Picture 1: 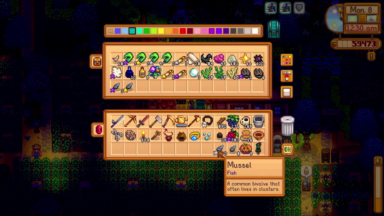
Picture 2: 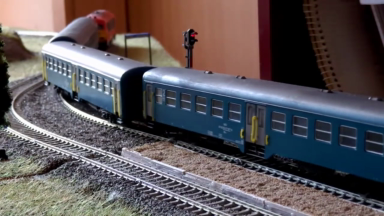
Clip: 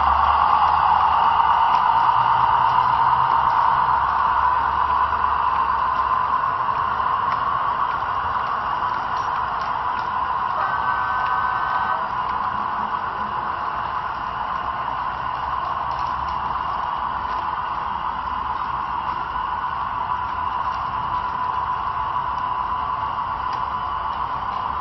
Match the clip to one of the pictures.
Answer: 2